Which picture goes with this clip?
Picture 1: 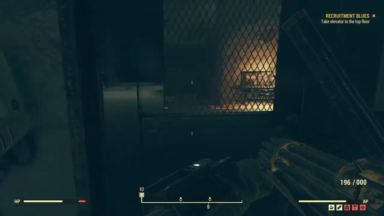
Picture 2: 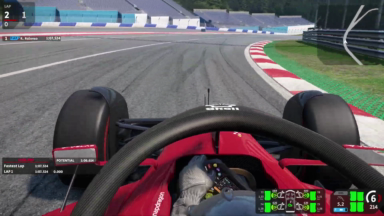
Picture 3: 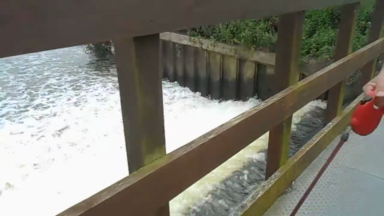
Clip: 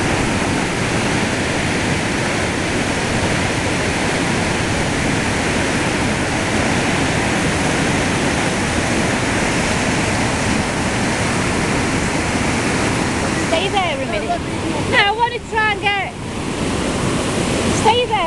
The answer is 3